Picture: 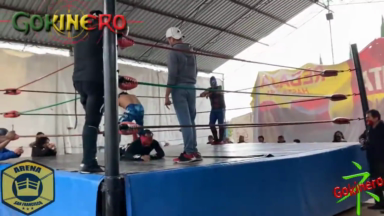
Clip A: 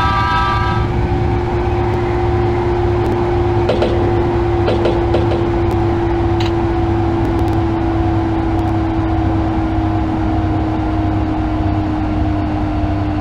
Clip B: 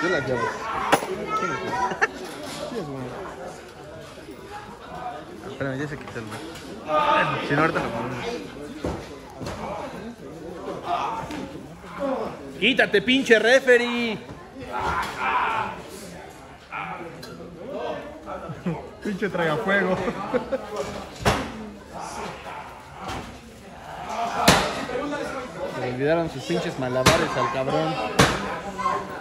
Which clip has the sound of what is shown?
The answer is B